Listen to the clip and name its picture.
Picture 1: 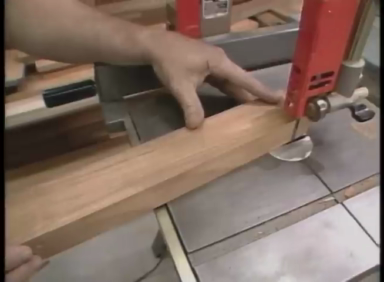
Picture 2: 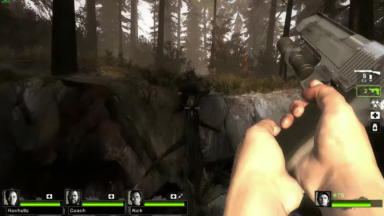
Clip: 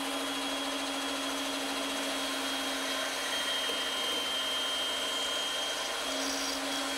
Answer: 1